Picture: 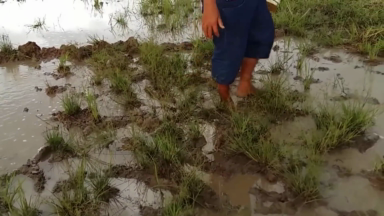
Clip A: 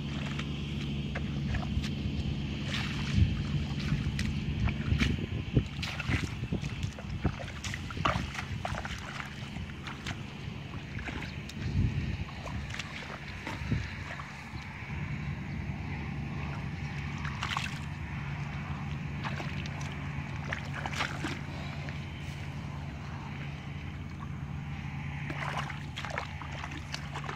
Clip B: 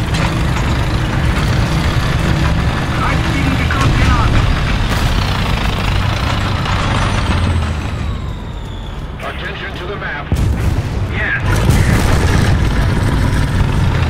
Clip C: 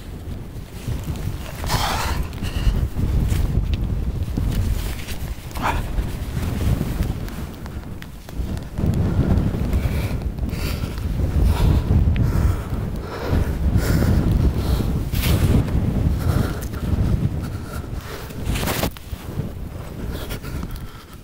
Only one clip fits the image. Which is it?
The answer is A